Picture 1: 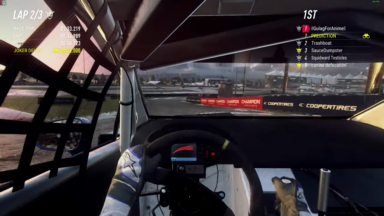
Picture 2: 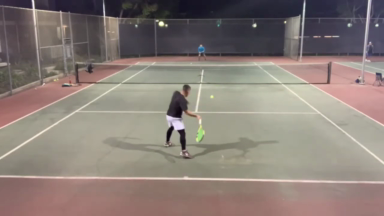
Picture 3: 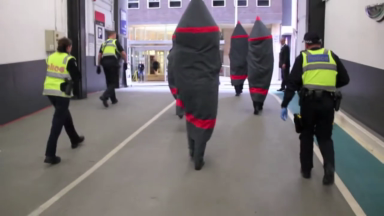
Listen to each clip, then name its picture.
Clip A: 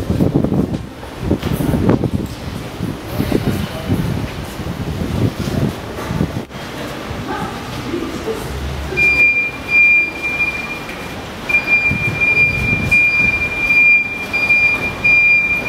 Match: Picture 3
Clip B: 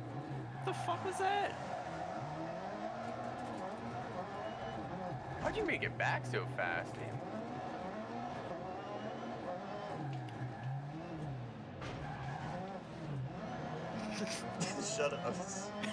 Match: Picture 1